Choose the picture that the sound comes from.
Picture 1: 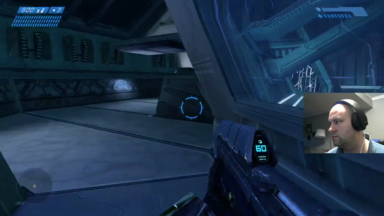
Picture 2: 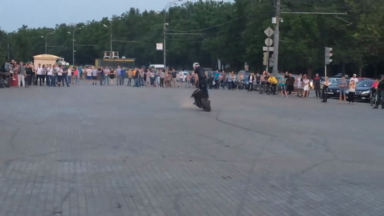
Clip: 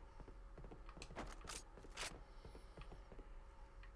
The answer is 1